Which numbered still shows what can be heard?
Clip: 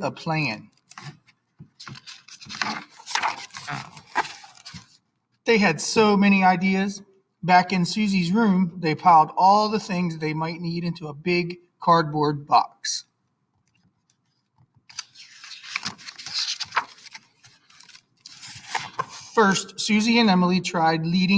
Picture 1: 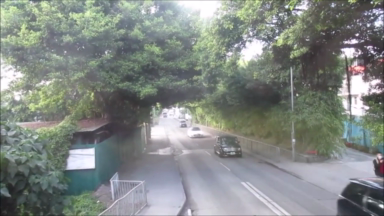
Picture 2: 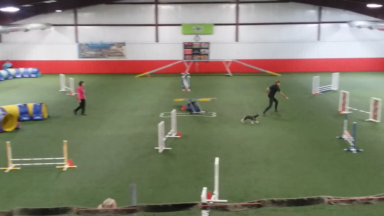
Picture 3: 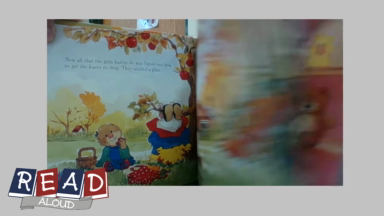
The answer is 3